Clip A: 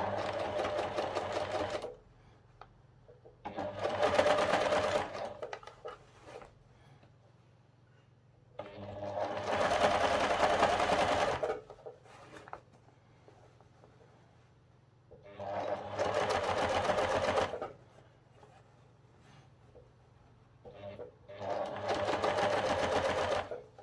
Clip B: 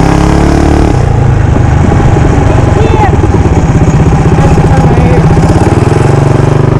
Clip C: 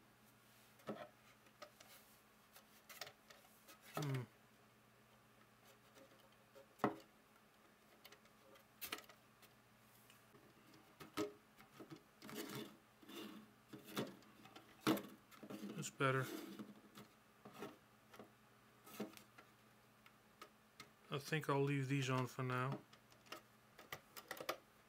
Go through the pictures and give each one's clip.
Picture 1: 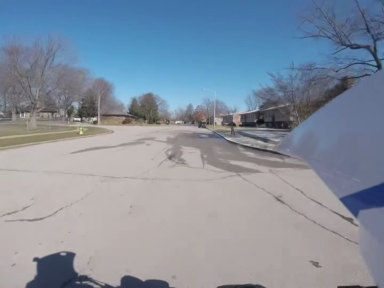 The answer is B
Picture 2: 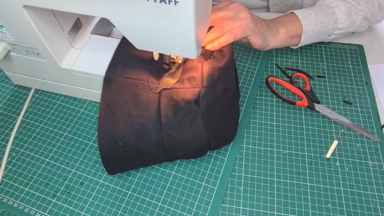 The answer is A